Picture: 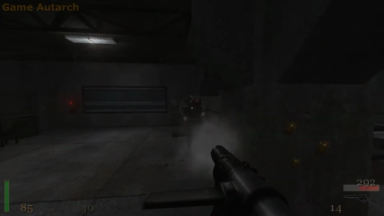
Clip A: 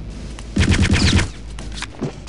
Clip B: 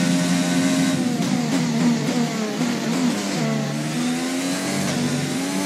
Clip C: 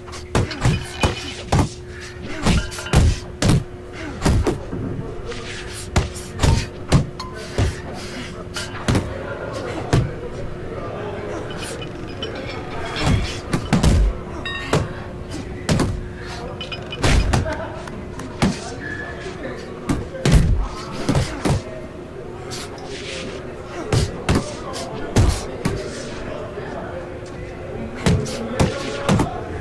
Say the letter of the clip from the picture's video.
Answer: A